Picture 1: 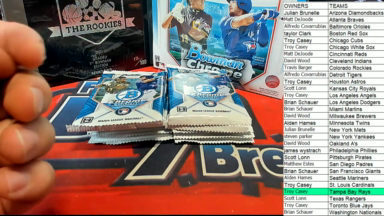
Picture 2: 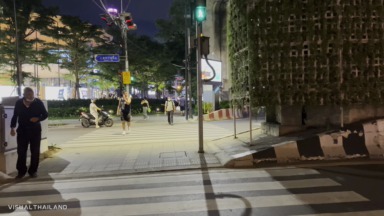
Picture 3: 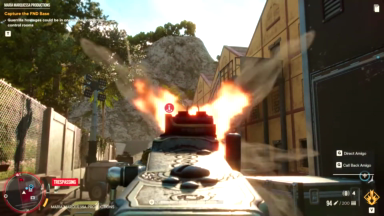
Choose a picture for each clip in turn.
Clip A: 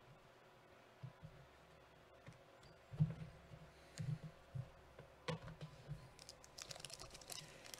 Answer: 1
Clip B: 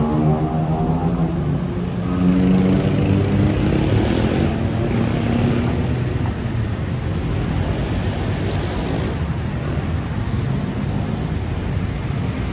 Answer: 2